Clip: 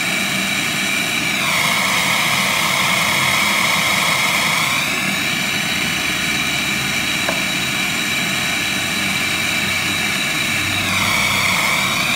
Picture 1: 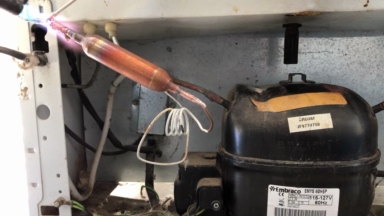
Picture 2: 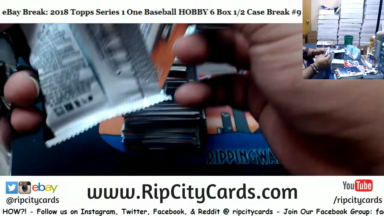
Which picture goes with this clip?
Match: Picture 1